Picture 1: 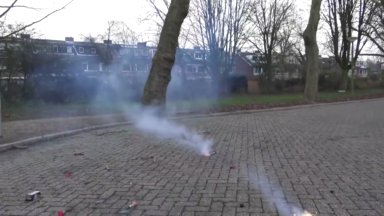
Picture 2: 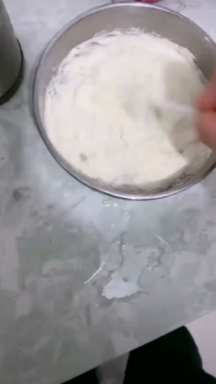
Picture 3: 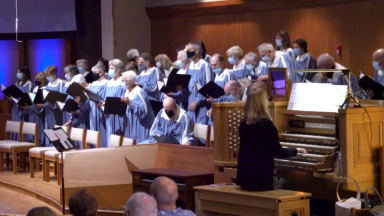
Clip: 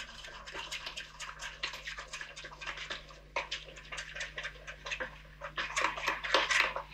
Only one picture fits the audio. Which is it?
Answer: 2